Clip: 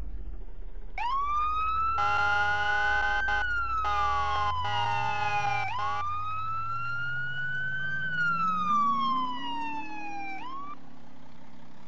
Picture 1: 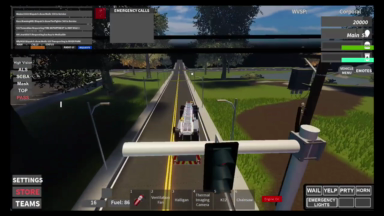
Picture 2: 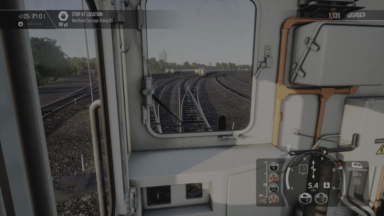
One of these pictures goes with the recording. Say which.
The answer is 1